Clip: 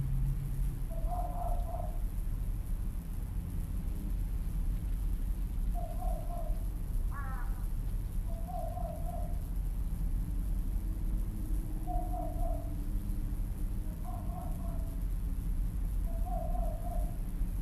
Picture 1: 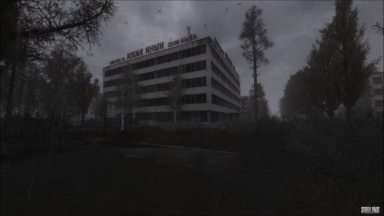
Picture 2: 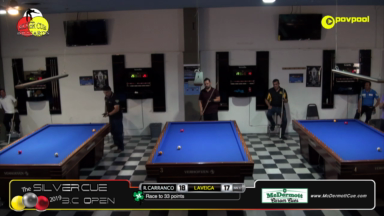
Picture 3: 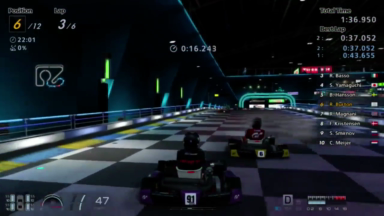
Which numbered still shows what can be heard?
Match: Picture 1